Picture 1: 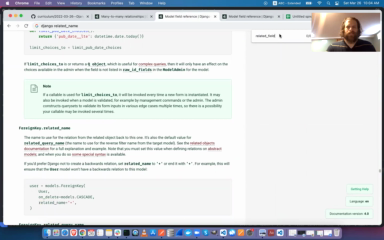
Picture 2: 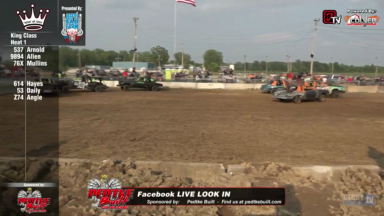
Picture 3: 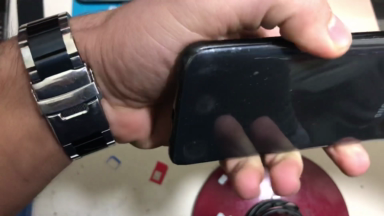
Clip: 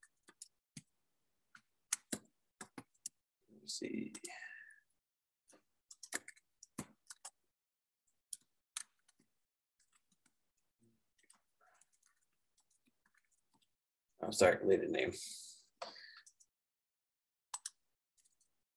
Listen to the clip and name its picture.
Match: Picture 1